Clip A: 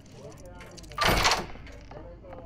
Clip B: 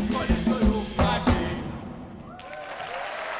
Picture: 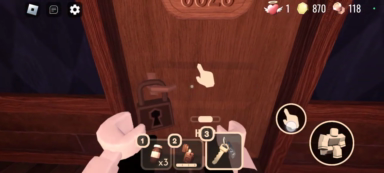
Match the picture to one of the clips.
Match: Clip A